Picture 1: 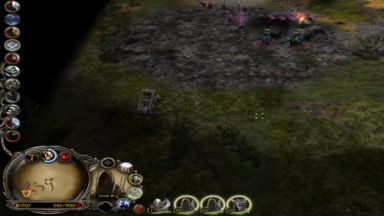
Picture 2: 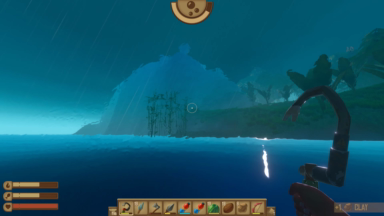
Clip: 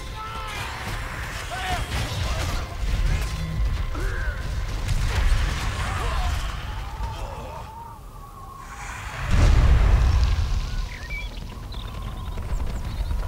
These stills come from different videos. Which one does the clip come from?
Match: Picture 1